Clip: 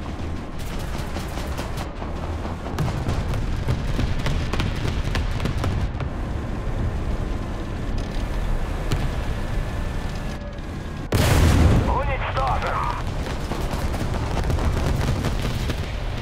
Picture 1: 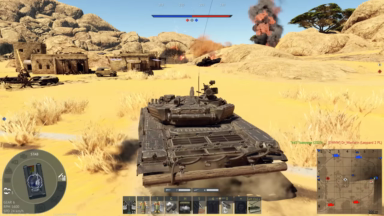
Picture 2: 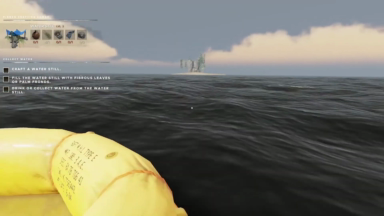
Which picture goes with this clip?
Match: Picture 1